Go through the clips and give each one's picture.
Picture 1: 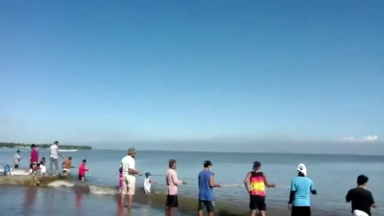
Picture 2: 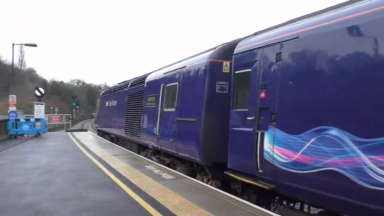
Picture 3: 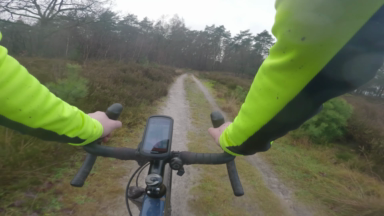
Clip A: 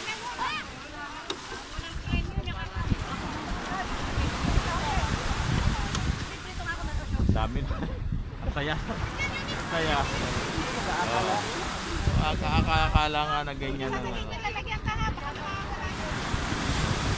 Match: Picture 1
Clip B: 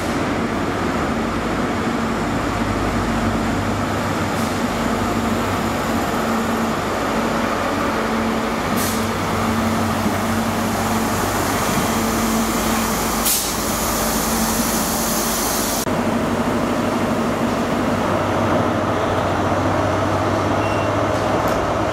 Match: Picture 2